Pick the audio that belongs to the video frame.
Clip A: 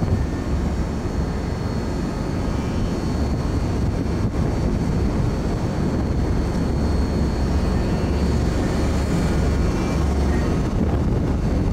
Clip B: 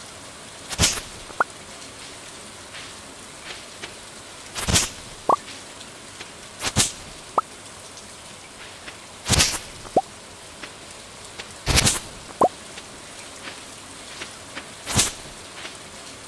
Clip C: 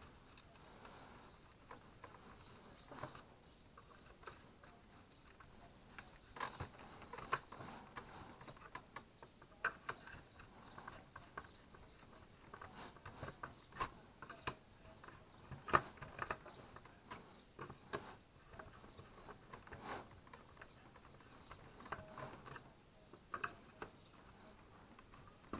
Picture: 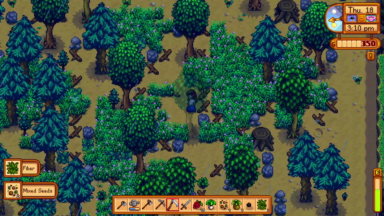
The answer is B